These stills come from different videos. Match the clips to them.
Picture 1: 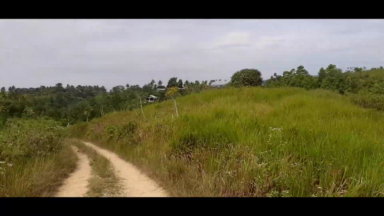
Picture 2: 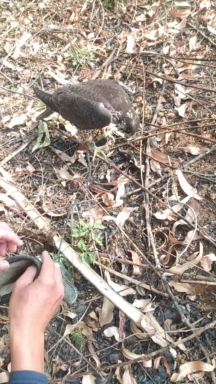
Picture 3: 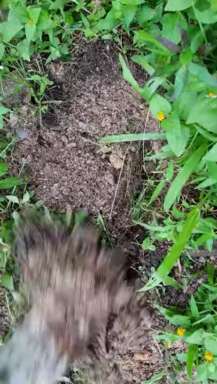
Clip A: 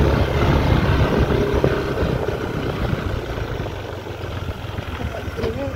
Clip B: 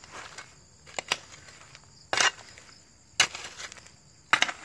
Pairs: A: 1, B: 3